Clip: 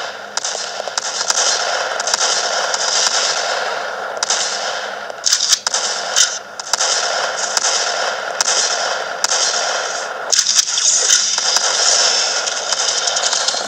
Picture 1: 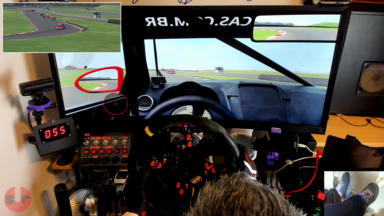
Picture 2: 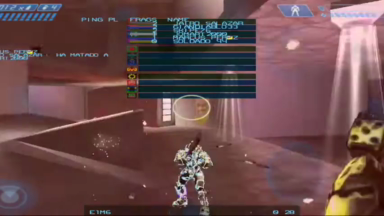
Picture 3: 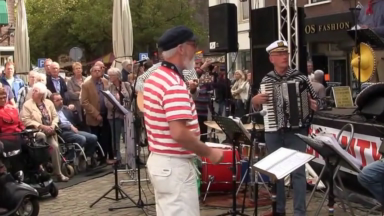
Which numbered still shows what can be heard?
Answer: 2